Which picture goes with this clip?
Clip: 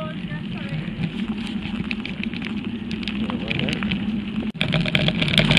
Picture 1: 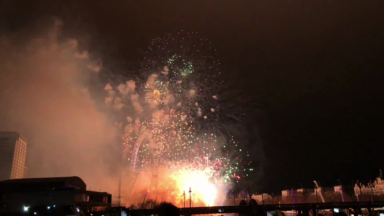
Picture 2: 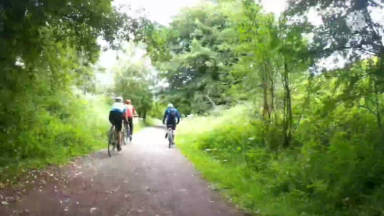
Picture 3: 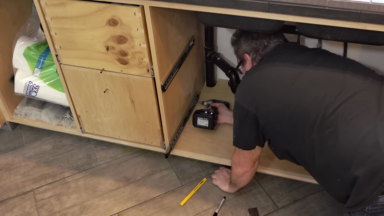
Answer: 2